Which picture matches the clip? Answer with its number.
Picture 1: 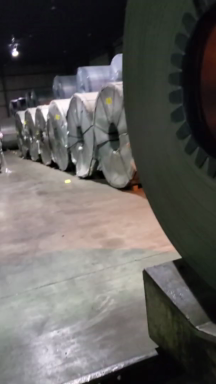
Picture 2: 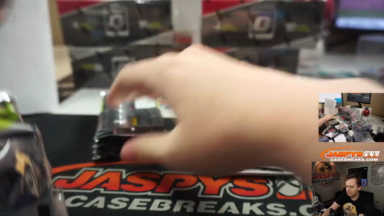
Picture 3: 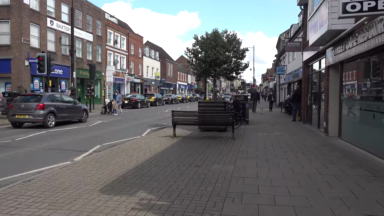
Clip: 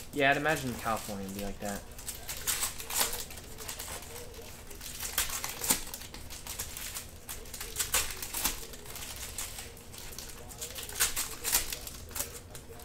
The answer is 2